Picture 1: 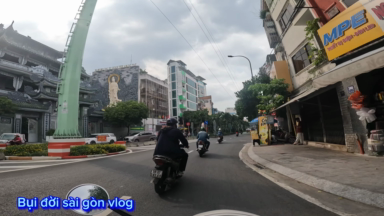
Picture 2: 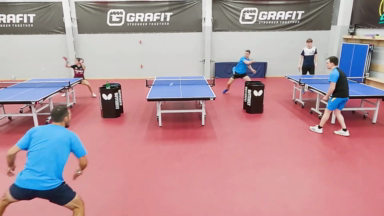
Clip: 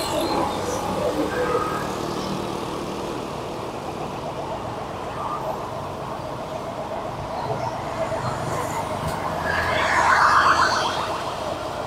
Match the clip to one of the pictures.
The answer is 1